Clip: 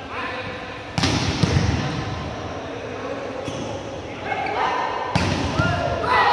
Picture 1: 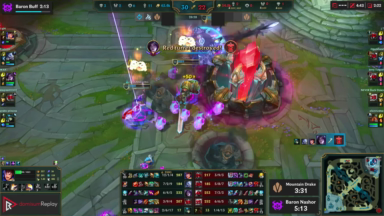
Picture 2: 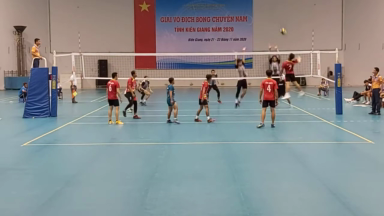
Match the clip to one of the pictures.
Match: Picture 2